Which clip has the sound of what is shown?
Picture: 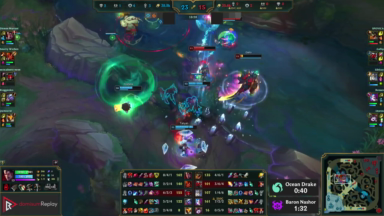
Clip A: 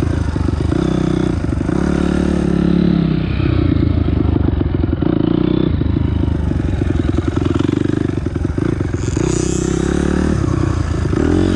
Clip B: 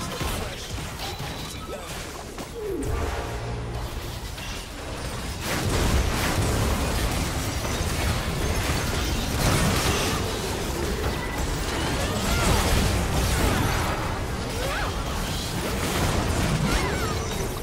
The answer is B